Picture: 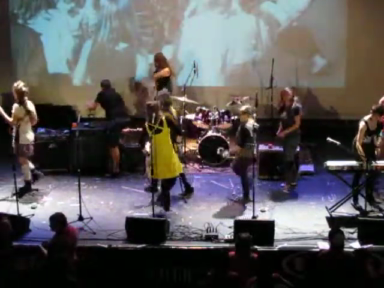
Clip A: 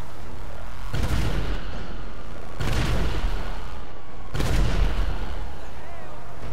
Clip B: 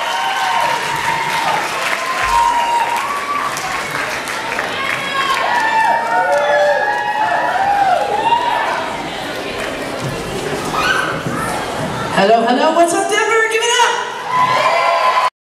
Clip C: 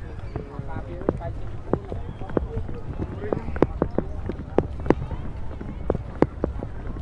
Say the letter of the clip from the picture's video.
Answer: B